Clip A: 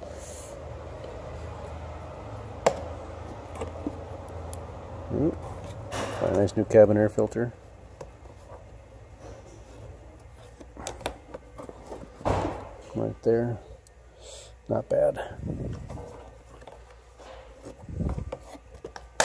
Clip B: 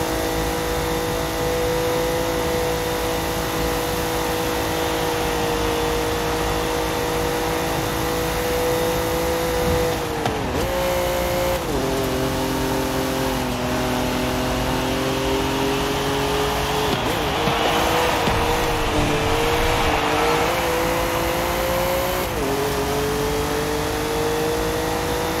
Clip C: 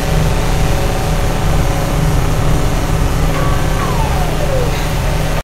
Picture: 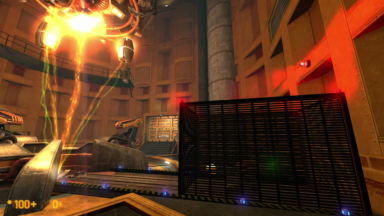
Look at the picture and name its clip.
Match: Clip C